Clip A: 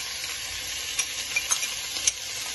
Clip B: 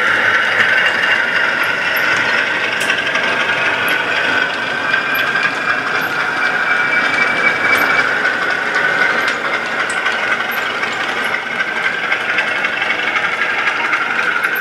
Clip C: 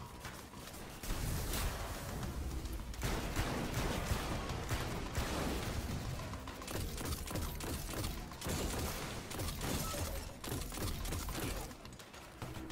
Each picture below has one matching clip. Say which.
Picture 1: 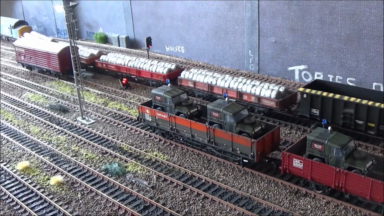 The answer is B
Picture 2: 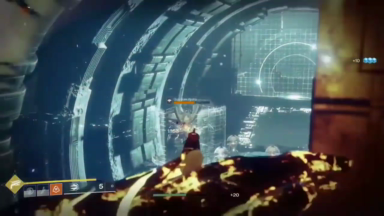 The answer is C